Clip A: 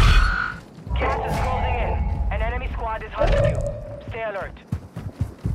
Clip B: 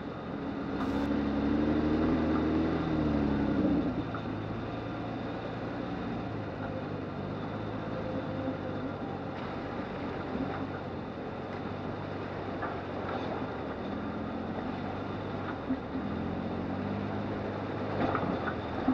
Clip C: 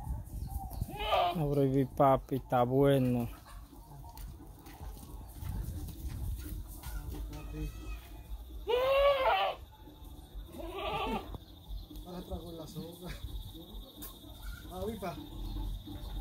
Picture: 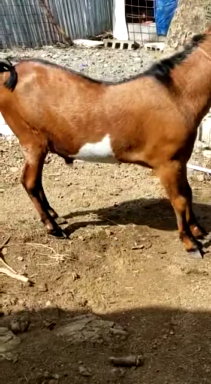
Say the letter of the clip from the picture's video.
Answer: C